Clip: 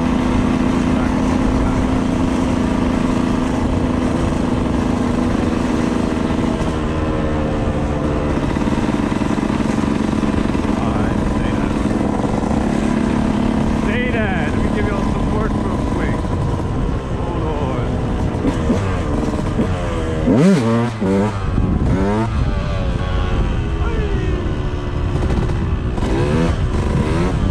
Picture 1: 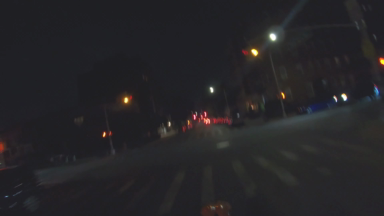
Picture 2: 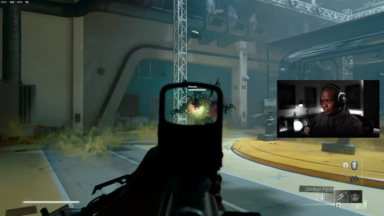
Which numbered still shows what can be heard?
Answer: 1